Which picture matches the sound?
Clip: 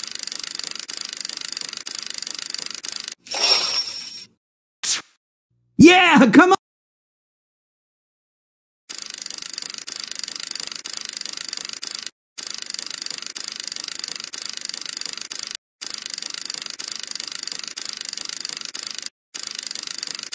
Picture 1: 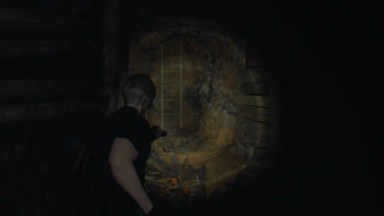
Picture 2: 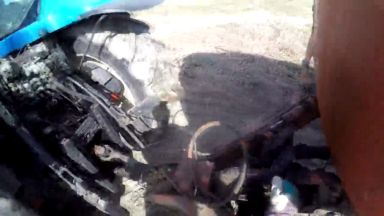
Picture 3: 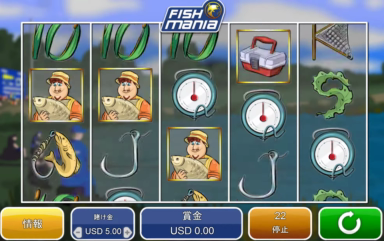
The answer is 3